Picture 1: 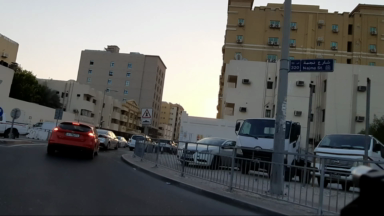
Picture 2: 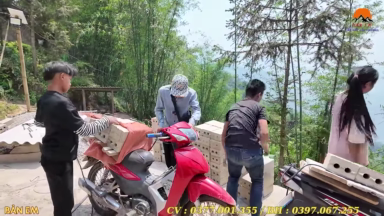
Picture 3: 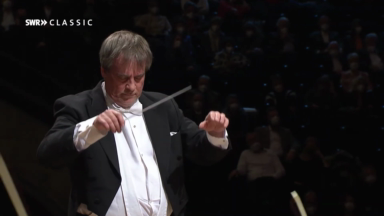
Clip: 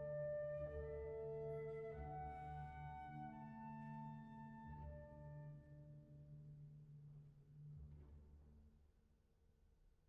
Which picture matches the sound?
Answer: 3